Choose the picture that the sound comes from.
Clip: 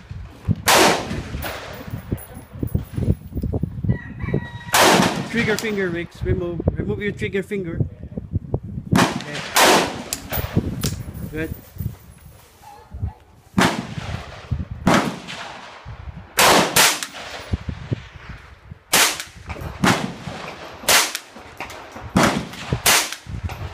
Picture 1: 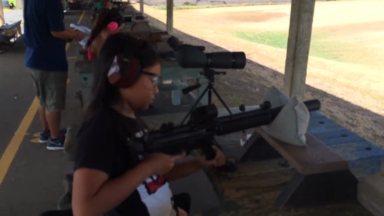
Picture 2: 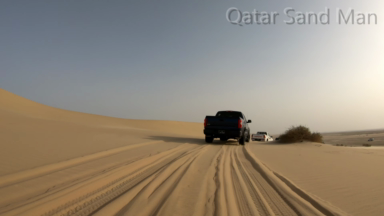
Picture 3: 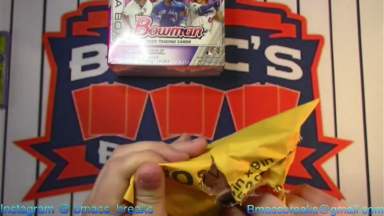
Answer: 1